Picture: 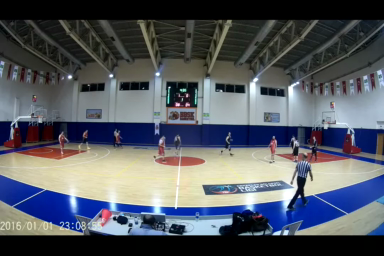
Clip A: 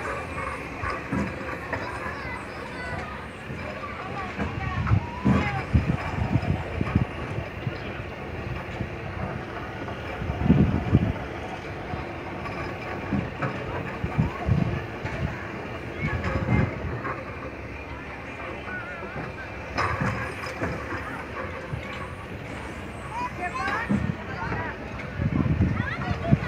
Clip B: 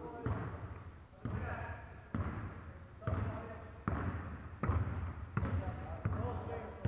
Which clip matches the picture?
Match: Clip B